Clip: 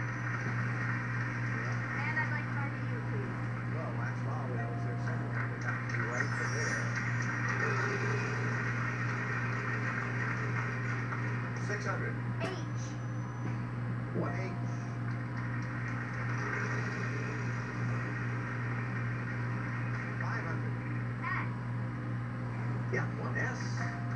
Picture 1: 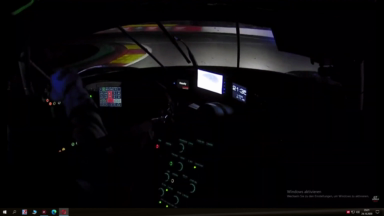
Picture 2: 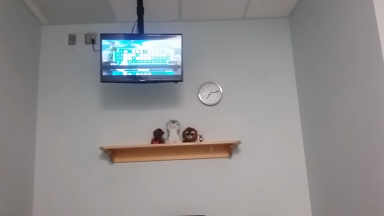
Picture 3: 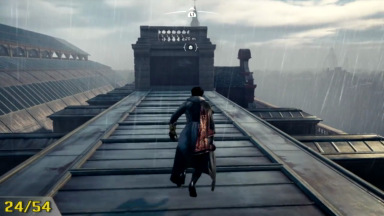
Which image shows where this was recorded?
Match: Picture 2